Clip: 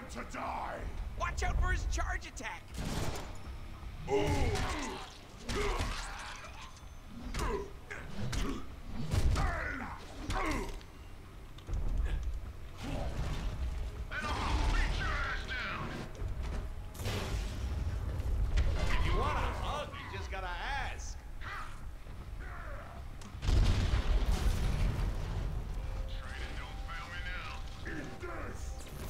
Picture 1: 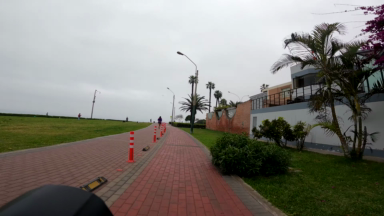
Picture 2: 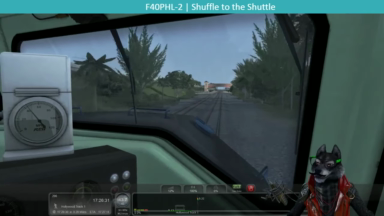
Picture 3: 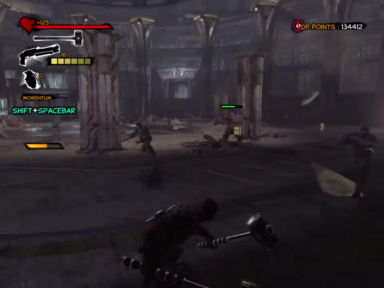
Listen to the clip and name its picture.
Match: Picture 3